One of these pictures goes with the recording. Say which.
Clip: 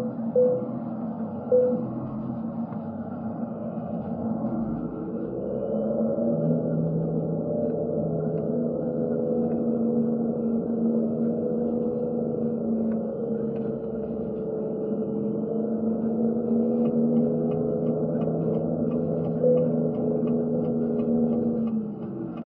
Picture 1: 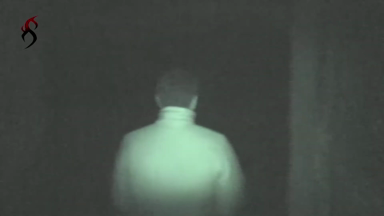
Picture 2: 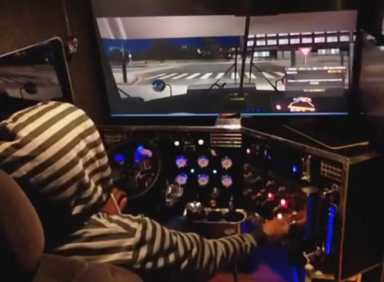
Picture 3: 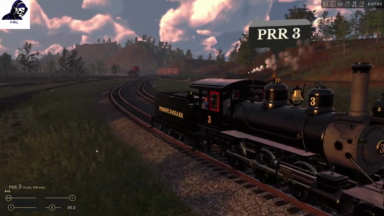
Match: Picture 2